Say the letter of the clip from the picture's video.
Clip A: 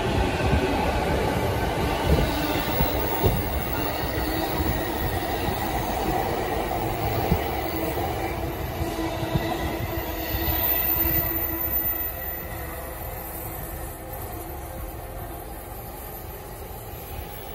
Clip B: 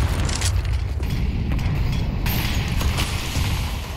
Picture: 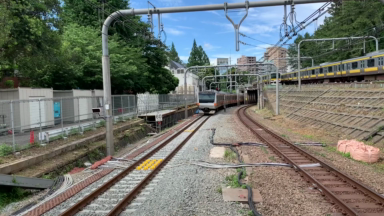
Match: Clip A